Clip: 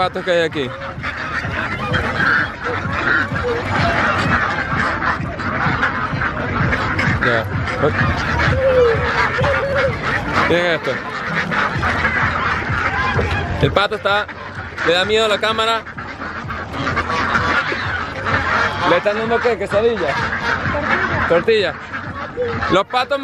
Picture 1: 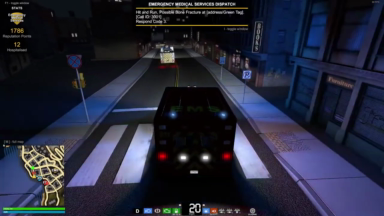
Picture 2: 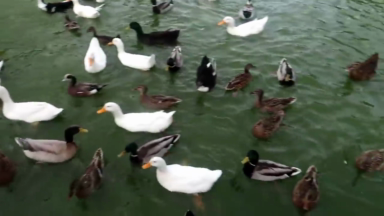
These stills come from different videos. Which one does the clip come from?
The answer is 2